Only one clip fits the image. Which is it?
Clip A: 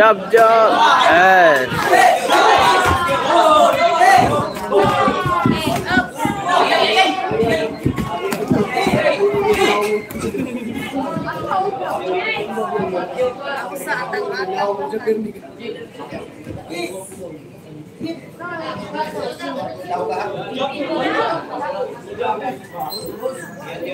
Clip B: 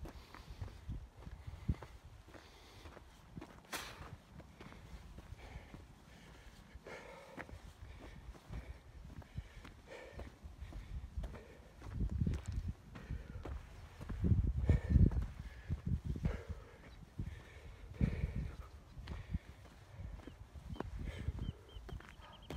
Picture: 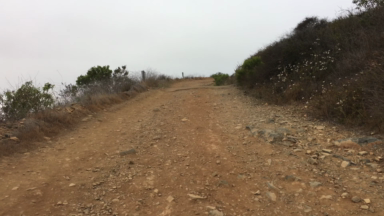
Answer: B